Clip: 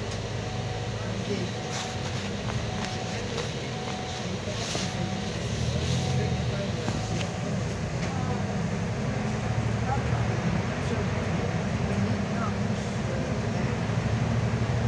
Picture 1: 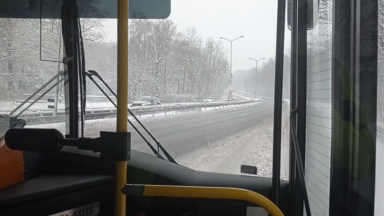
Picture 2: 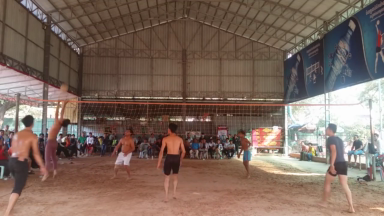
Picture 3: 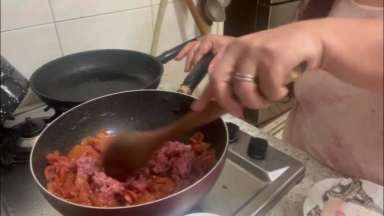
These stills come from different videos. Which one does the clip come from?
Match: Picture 1